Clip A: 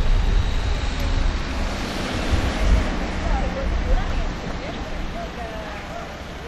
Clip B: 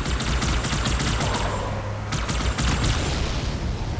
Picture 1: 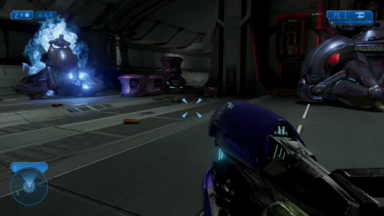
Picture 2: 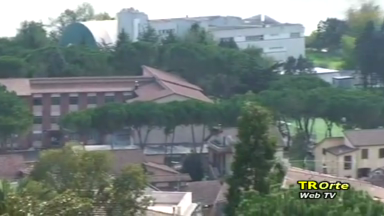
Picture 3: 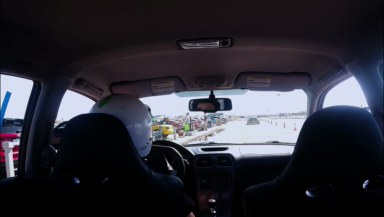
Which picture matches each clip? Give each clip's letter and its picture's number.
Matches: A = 2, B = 1